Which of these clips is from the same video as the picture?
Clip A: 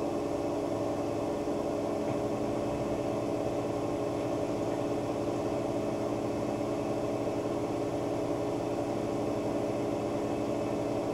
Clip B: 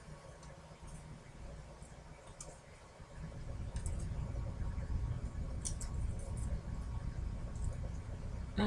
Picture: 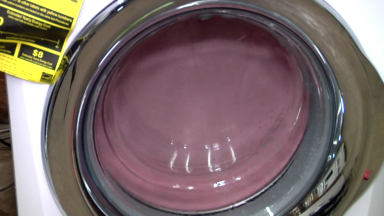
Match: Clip A